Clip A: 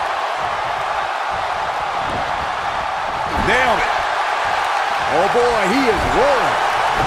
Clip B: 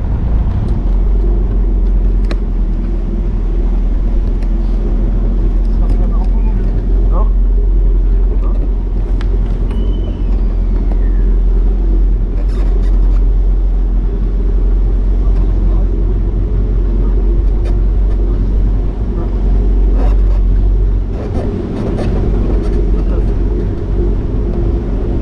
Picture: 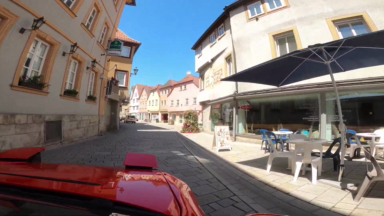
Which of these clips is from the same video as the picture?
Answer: B